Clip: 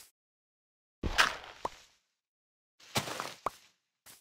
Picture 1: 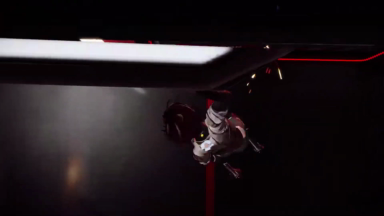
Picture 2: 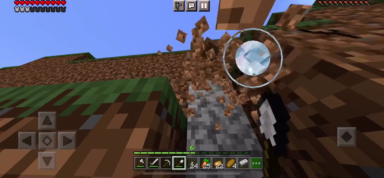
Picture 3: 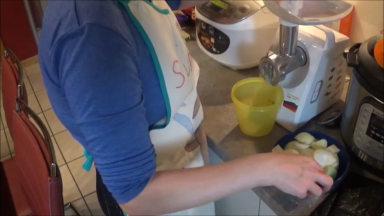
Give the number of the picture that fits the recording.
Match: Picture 2